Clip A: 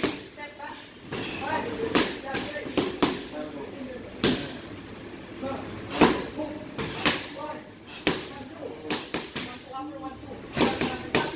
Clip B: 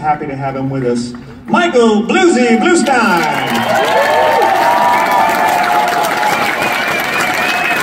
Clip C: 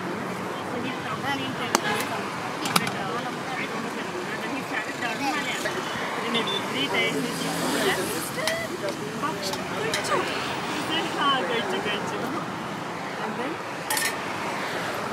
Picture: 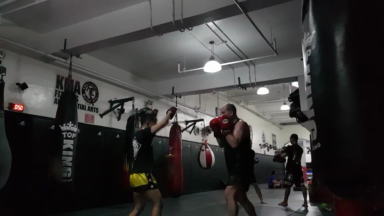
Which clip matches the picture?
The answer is A